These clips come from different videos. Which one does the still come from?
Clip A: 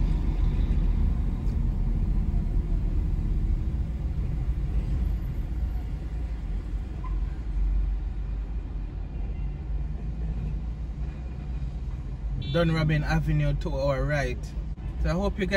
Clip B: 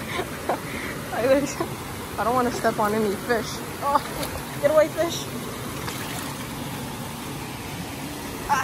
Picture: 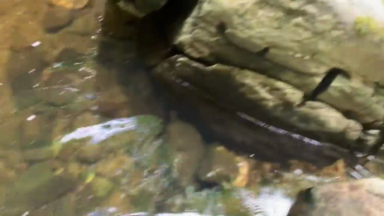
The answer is B